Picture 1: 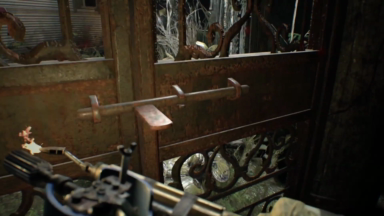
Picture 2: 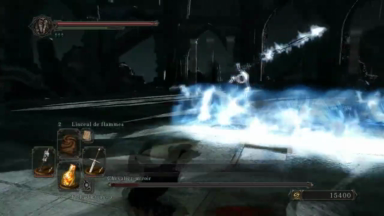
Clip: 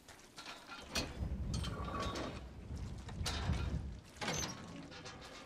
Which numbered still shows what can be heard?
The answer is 1